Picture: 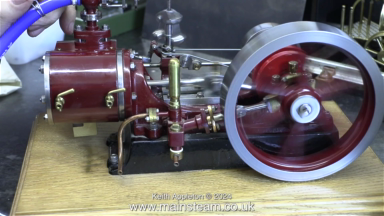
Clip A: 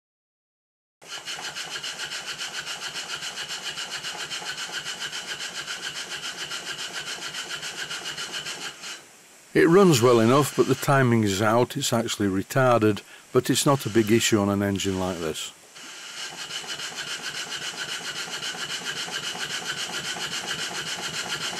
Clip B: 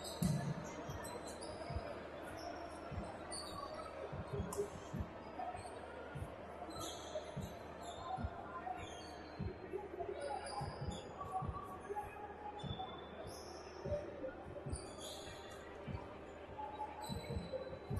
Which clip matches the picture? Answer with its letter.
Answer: A